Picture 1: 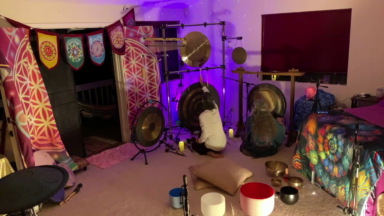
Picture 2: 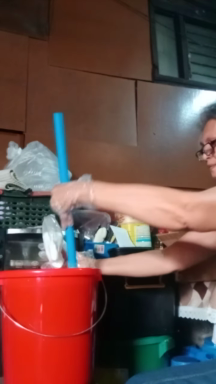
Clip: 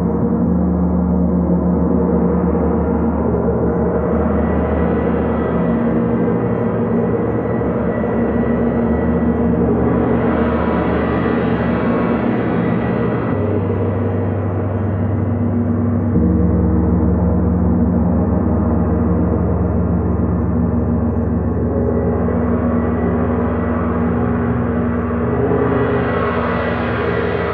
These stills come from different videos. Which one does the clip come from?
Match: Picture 1